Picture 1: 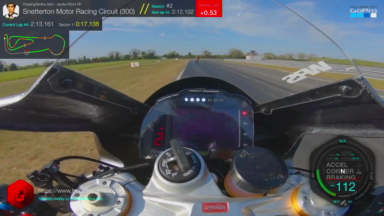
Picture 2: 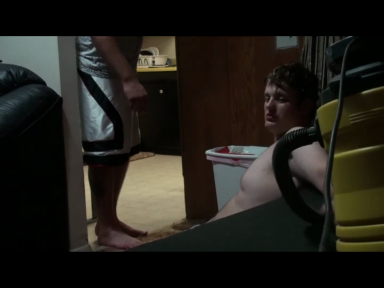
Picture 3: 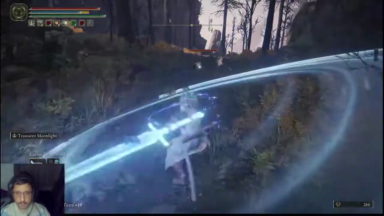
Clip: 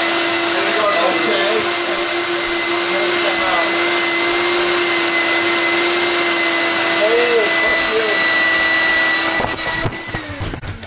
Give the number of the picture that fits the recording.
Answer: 2